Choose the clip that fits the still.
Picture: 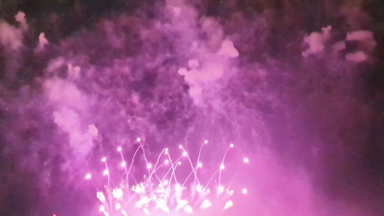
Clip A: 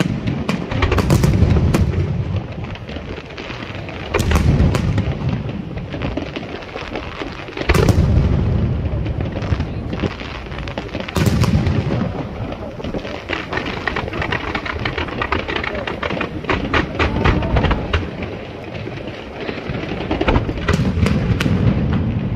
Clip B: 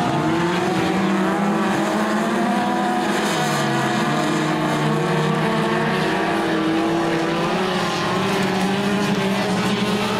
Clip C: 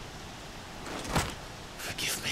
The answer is A